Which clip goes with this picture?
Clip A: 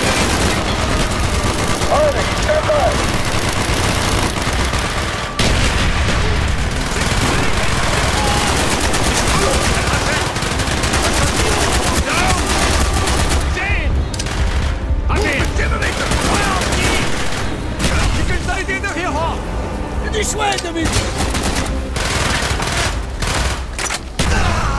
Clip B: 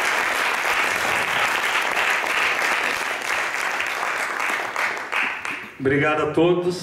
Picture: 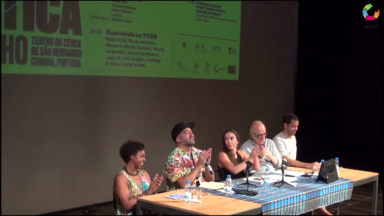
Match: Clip B